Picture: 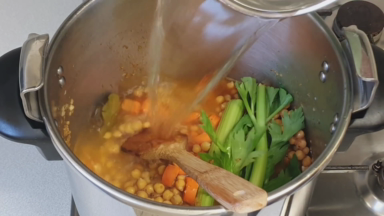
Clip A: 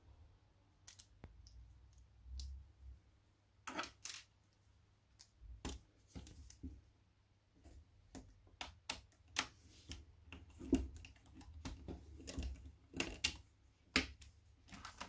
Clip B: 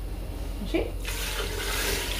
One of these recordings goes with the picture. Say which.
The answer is B